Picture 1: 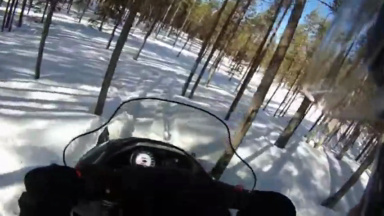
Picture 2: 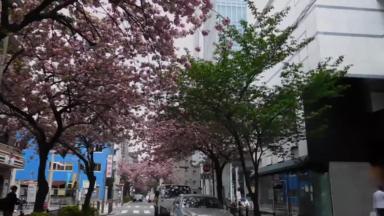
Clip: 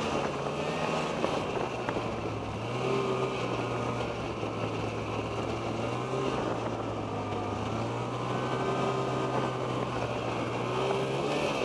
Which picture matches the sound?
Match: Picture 1